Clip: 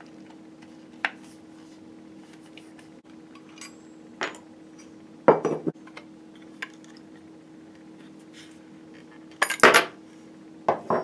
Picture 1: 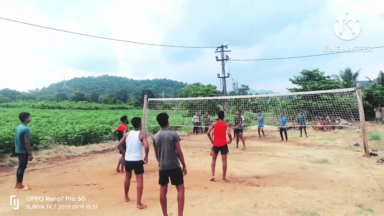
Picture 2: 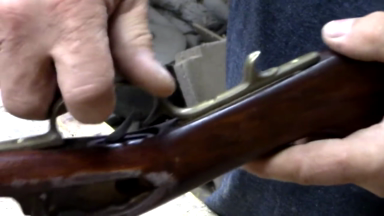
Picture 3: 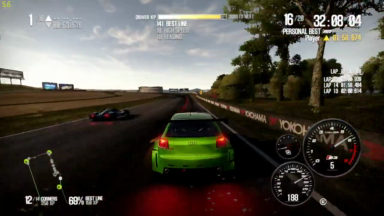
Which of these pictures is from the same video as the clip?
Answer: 2